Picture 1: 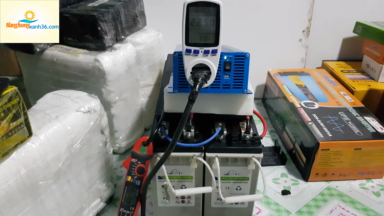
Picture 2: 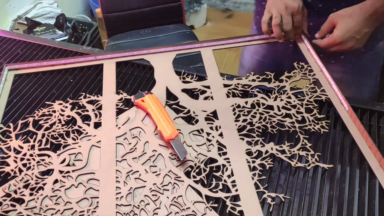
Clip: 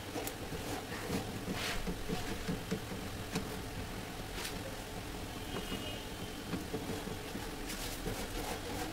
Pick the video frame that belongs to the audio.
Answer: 2